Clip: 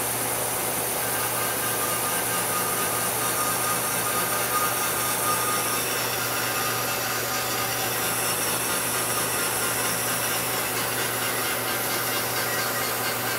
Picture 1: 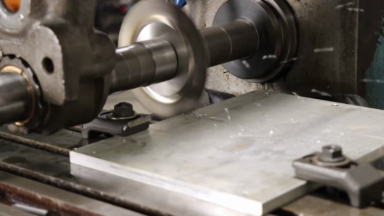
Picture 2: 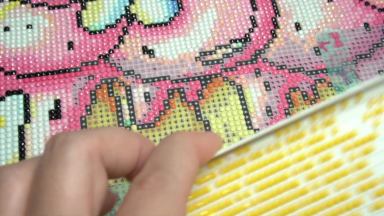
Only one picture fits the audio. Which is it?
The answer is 1